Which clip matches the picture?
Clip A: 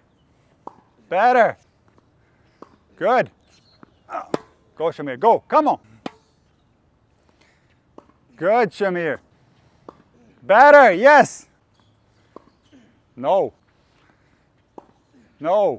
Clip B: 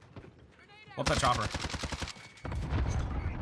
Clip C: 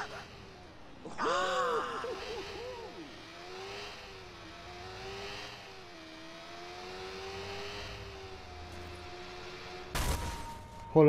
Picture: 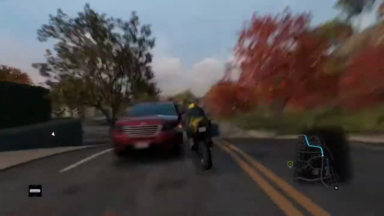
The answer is C